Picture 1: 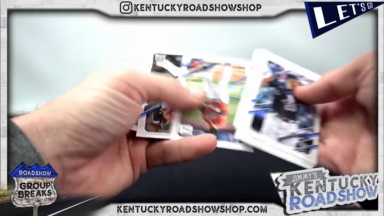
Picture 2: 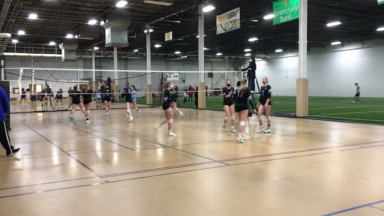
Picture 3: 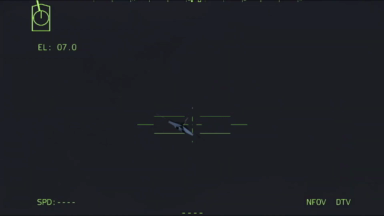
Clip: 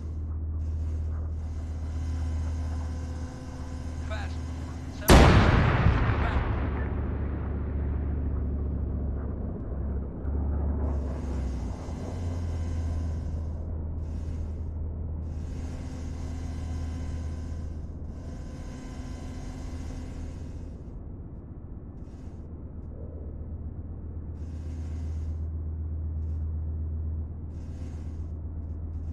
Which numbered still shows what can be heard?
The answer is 3